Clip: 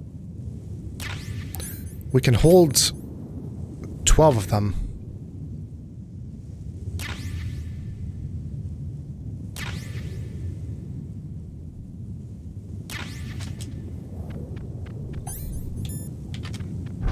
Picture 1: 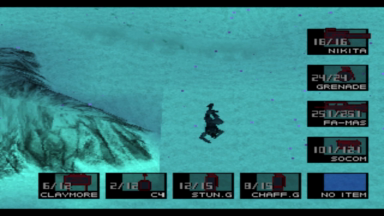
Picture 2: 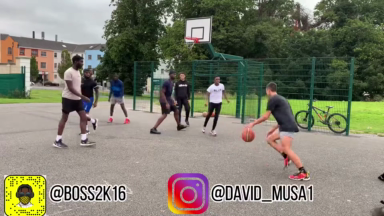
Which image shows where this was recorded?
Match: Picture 1